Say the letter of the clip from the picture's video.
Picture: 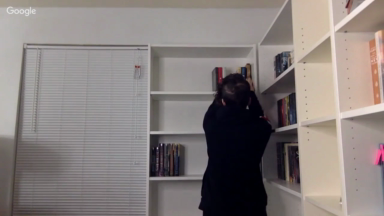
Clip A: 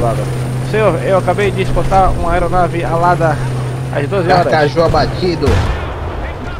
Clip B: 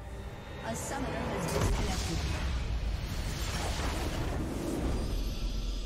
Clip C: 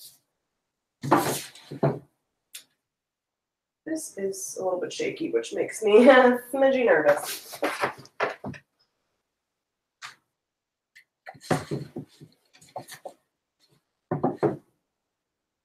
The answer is C